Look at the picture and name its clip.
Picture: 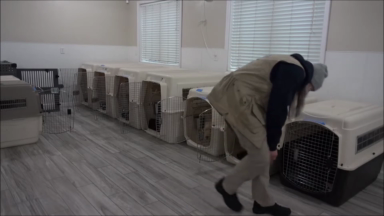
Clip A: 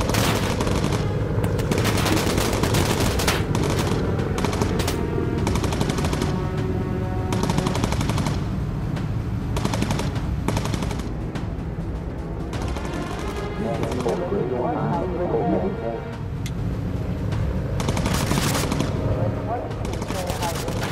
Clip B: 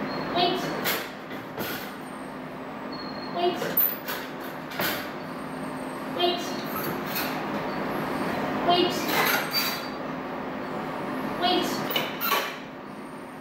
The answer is B